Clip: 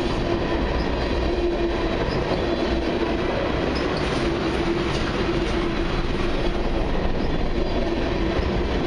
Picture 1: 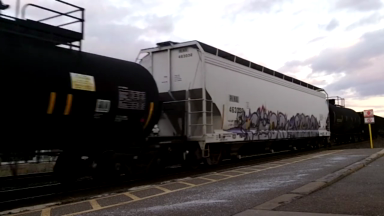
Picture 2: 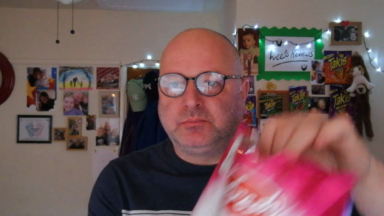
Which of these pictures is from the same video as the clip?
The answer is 1